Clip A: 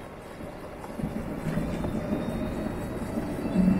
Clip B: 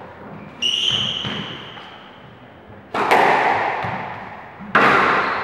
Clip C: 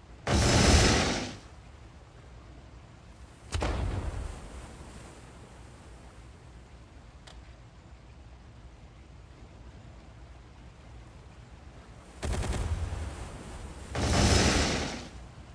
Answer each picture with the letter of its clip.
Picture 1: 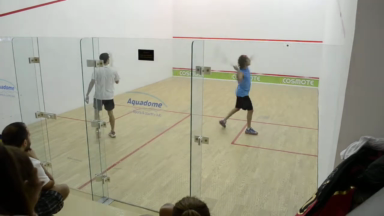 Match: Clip B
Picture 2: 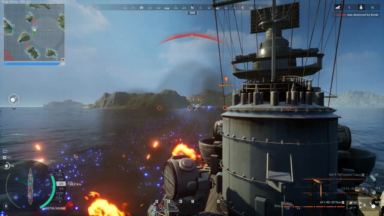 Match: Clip C